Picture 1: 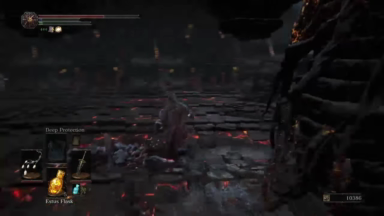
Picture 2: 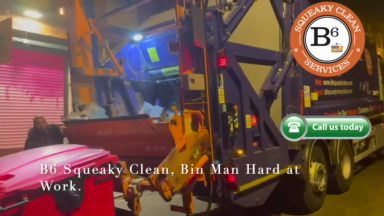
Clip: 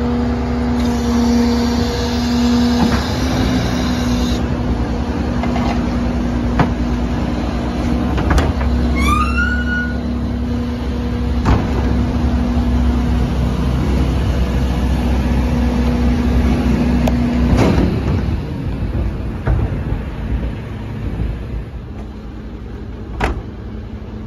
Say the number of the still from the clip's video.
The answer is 2